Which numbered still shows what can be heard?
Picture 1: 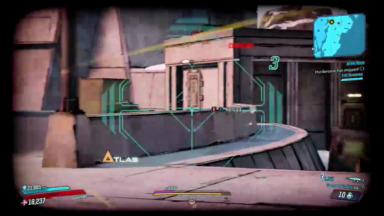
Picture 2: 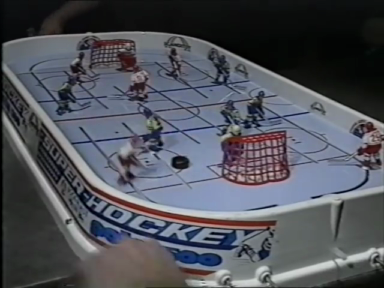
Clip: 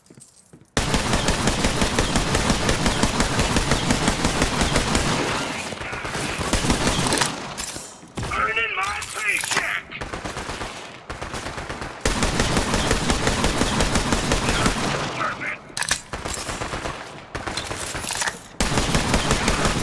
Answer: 1